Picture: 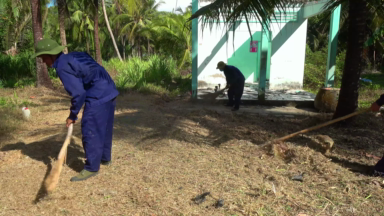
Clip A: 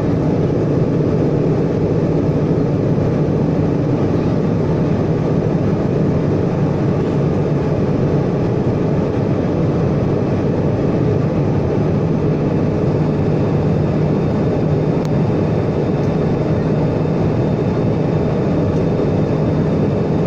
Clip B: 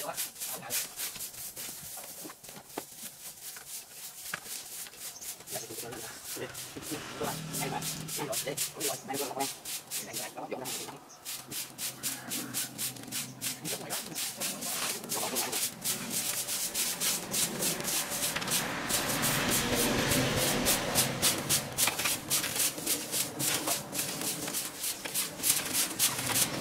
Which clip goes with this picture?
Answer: B